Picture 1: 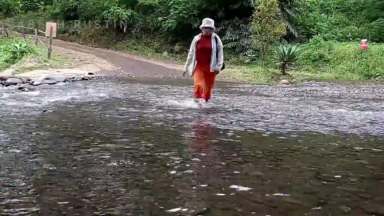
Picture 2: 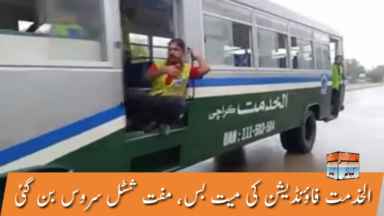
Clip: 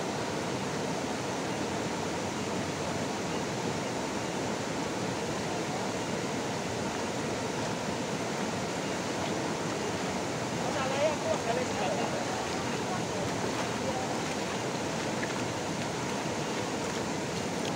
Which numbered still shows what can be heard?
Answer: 1